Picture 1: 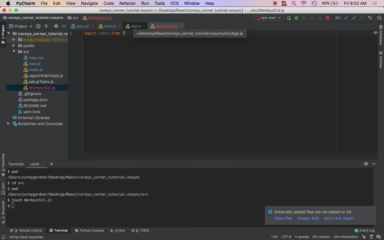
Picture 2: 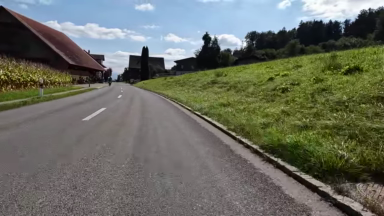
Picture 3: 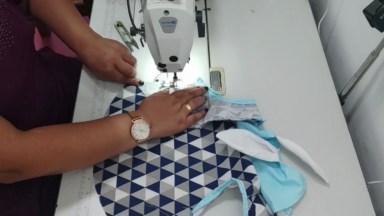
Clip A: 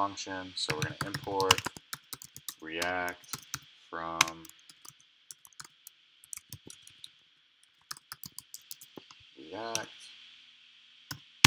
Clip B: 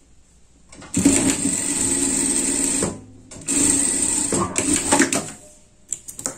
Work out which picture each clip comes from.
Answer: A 1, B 3